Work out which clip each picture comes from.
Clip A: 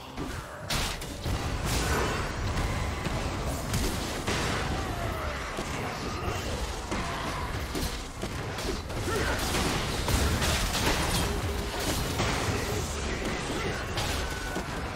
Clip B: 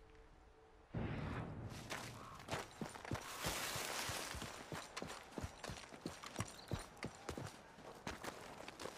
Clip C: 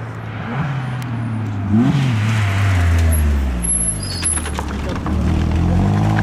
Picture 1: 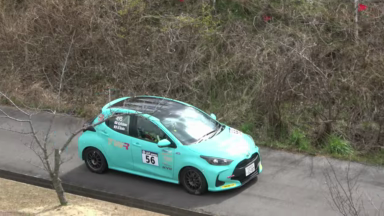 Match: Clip C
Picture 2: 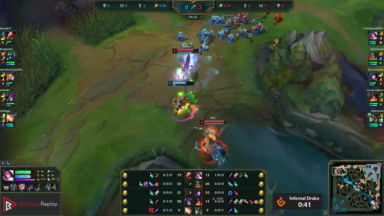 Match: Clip A